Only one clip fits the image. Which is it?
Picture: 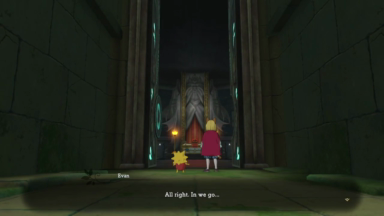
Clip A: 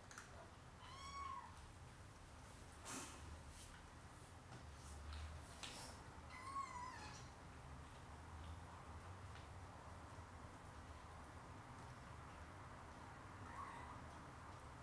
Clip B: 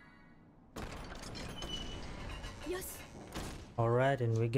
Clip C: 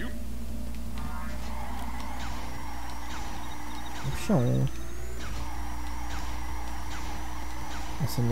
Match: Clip B